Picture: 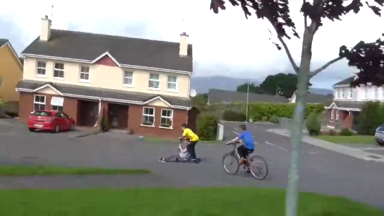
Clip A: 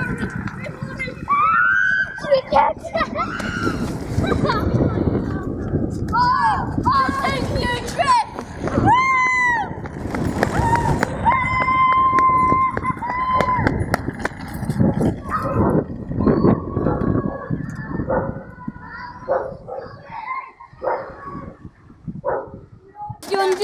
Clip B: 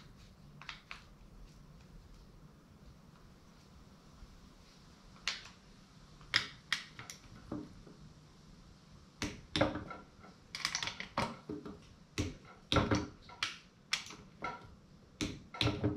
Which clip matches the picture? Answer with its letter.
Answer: A